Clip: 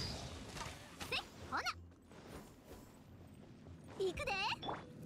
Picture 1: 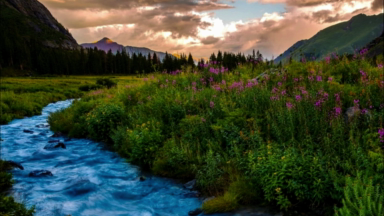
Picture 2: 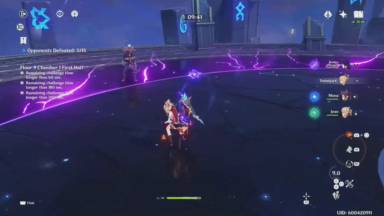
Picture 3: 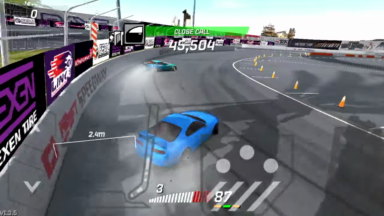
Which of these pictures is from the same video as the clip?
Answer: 2